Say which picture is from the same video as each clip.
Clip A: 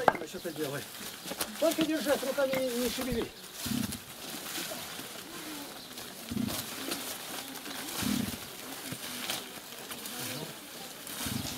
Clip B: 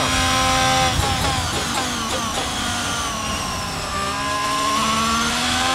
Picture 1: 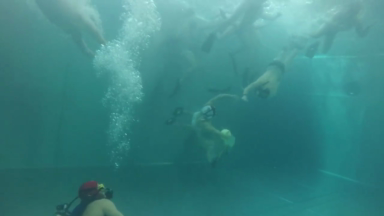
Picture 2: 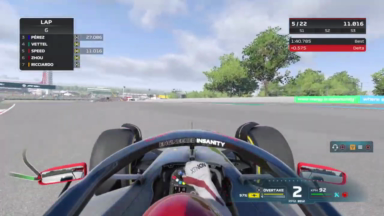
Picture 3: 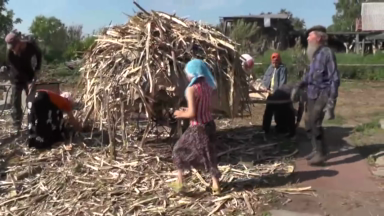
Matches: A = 3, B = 2